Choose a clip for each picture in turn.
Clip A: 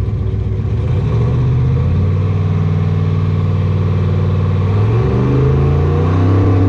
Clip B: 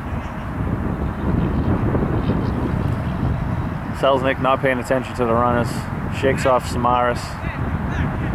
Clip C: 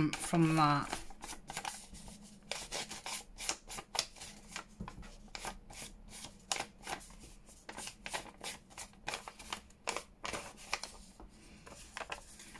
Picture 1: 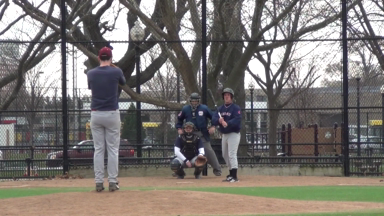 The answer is B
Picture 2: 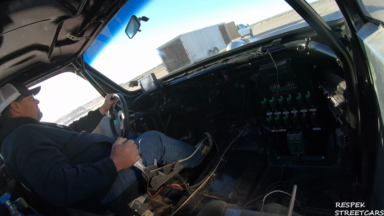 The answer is A